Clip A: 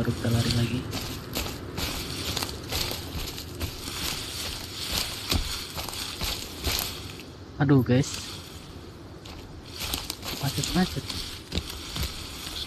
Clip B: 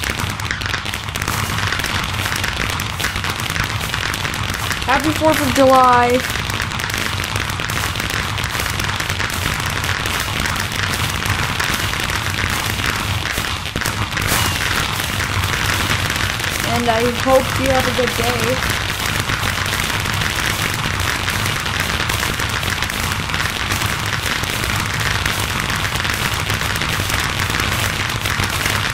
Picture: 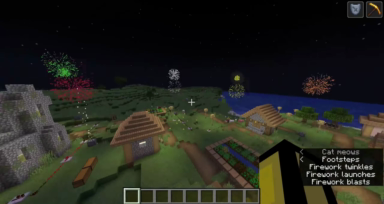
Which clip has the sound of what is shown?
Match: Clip B